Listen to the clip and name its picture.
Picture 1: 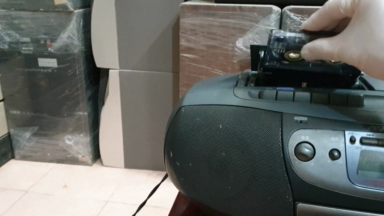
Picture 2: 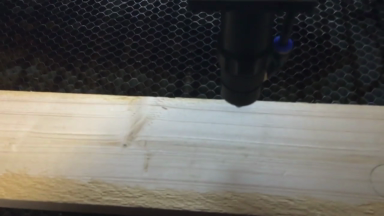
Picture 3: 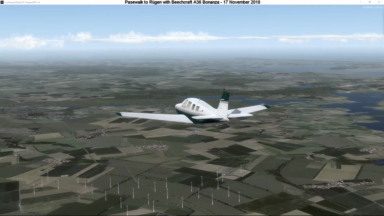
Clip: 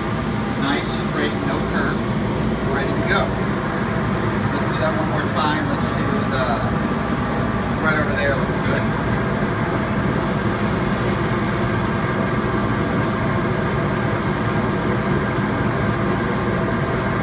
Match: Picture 2